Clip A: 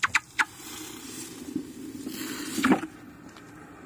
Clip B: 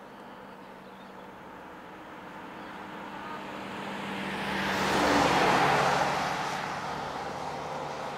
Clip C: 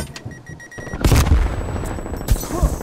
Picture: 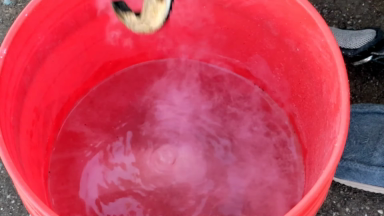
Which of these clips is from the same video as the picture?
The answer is A